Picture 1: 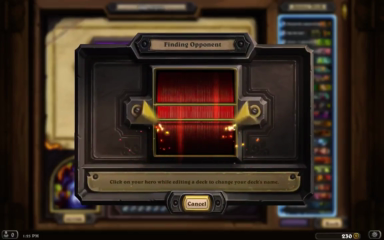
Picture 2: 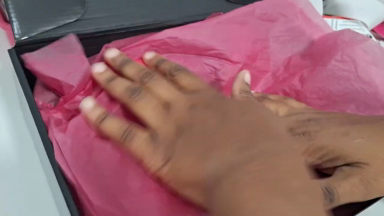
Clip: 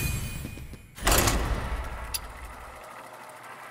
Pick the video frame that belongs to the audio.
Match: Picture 1